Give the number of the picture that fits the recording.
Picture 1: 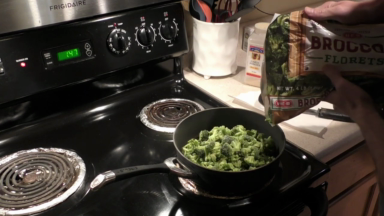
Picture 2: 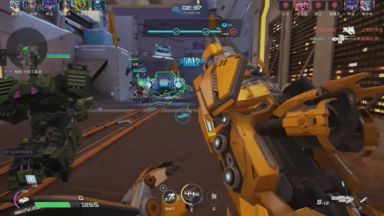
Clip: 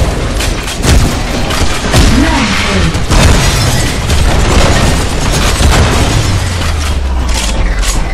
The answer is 2